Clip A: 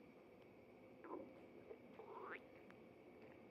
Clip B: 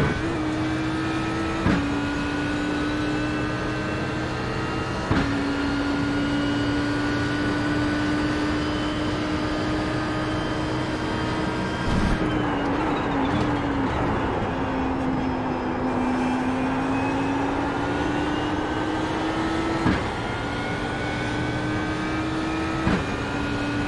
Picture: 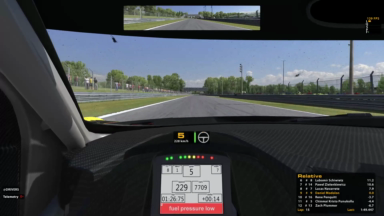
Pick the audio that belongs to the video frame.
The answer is B